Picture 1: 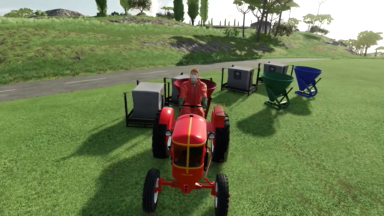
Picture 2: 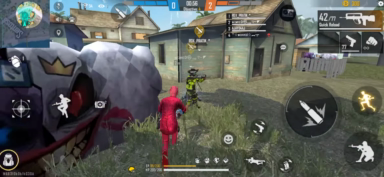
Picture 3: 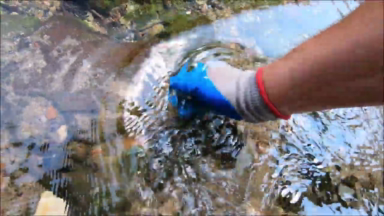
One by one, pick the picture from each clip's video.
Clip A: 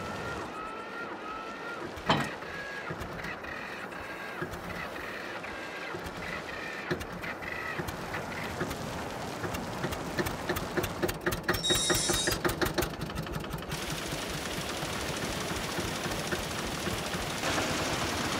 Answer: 1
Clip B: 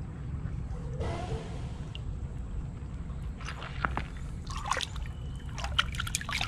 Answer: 3